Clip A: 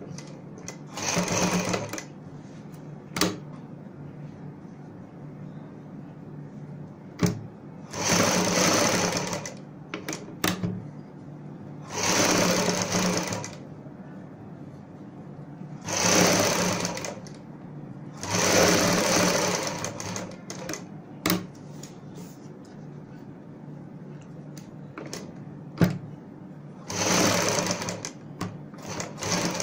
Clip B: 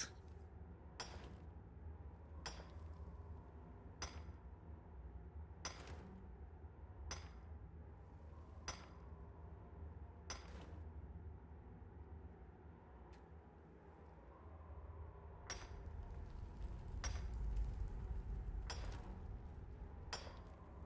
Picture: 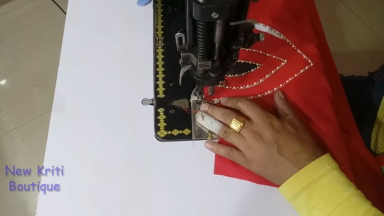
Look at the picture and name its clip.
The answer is A